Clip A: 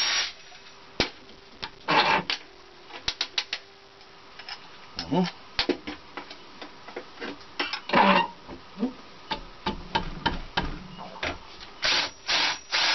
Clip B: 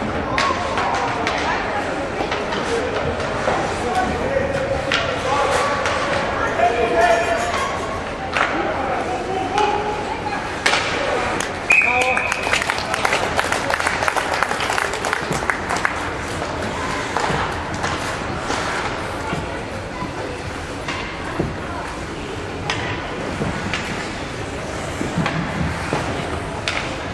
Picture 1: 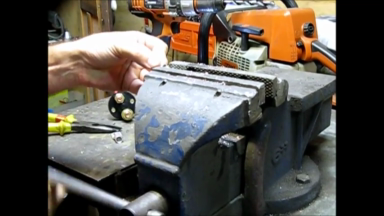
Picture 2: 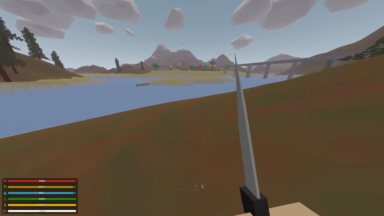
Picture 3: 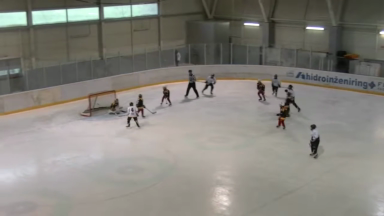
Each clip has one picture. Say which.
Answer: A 1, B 3